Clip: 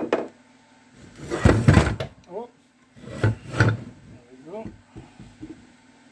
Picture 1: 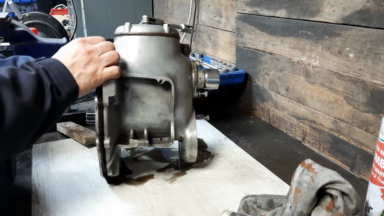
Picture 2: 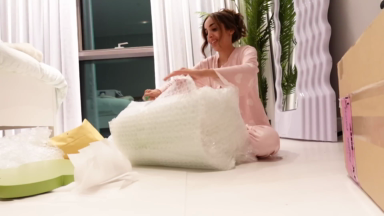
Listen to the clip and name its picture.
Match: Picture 1